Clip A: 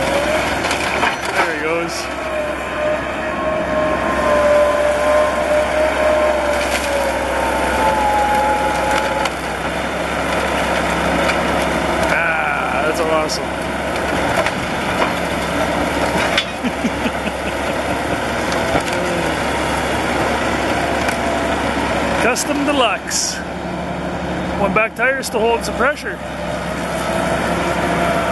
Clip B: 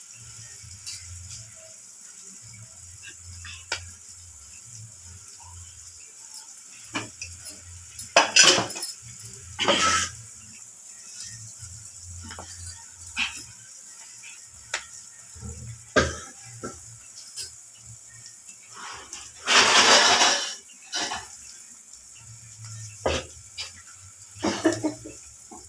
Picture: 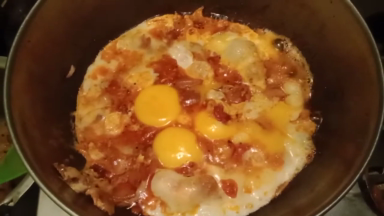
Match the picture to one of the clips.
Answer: B